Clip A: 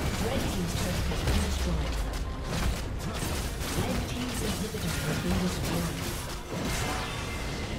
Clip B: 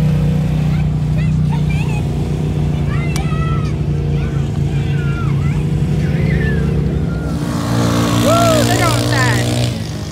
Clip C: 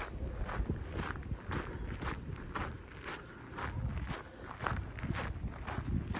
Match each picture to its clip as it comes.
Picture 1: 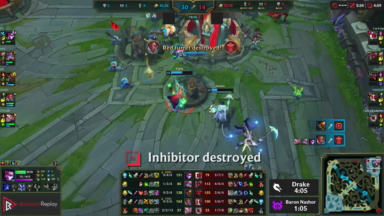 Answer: A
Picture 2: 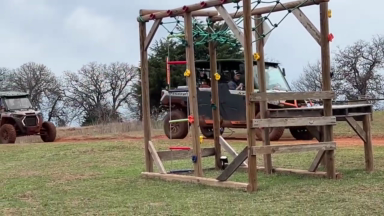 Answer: B